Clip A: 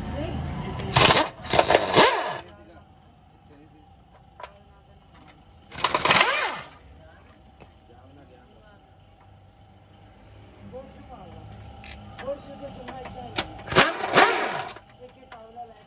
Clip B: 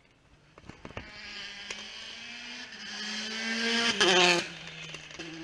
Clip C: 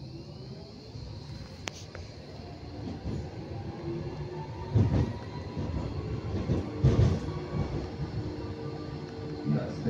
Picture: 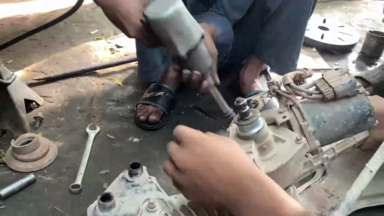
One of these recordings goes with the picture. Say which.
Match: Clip A